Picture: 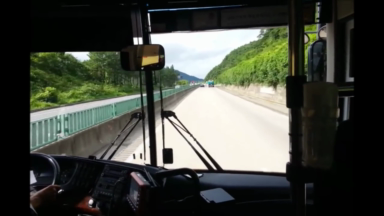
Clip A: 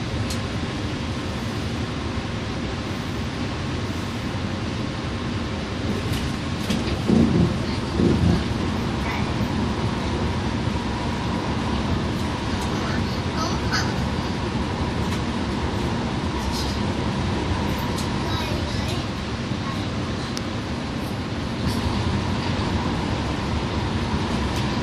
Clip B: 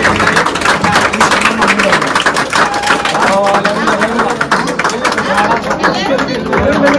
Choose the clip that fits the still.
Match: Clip A